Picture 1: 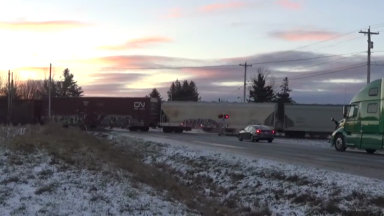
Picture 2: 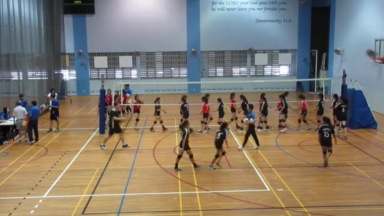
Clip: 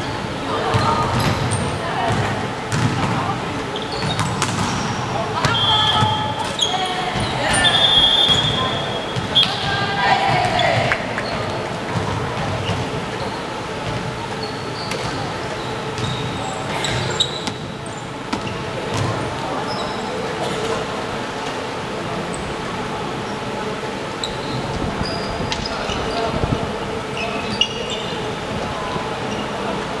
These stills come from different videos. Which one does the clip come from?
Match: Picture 2